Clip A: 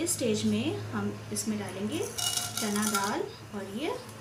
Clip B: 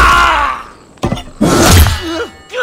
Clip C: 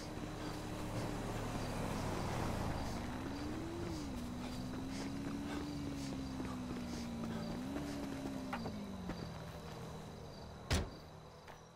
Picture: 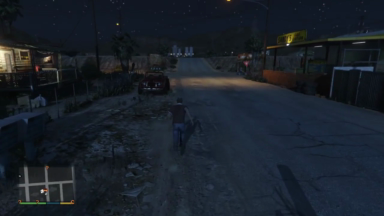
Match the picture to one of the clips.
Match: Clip C